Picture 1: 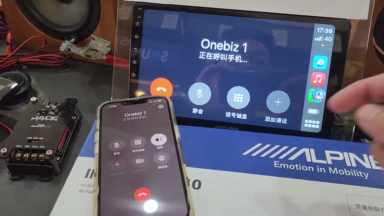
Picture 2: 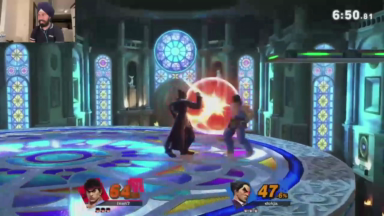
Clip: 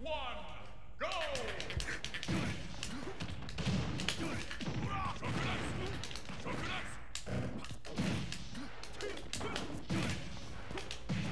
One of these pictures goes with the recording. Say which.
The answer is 2